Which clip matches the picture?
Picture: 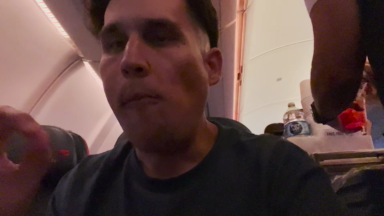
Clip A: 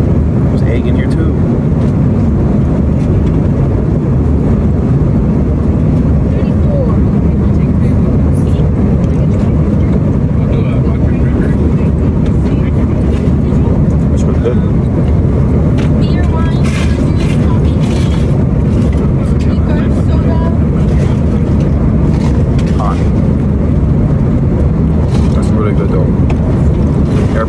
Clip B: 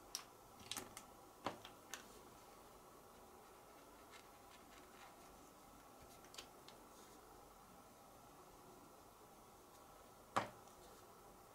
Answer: A